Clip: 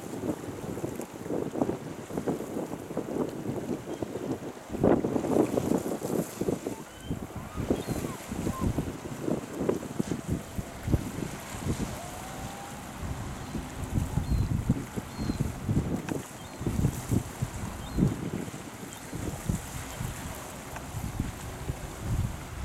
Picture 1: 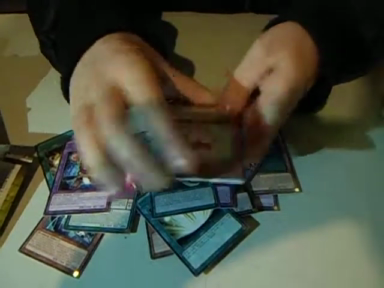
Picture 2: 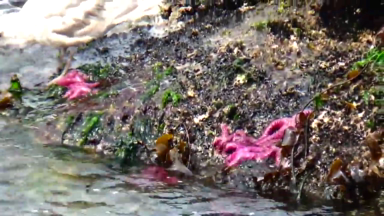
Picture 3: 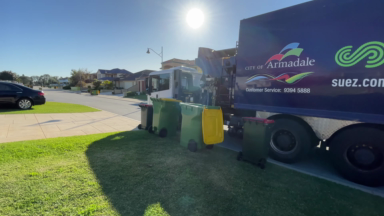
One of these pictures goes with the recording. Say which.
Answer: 2